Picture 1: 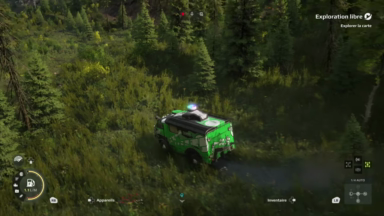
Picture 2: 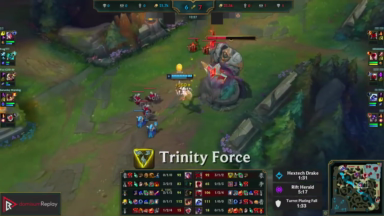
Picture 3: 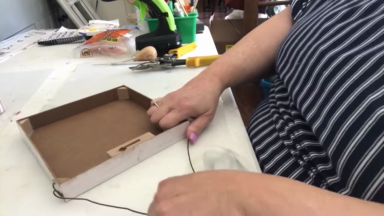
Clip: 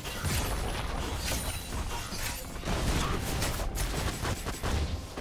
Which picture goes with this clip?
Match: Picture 2